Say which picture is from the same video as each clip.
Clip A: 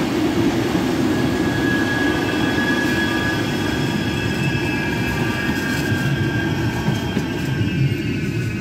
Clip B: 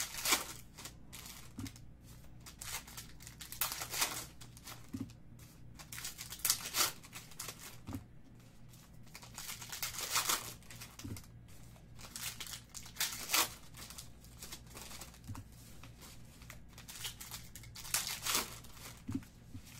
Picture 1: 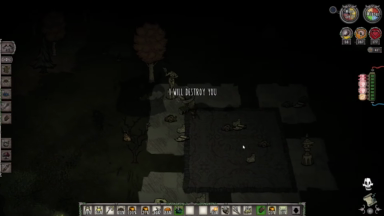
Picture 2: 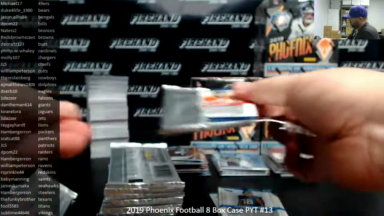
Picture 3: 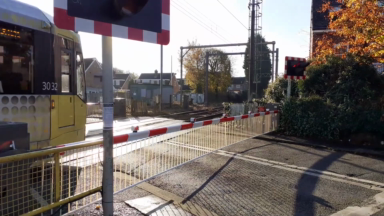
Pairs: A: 3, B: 2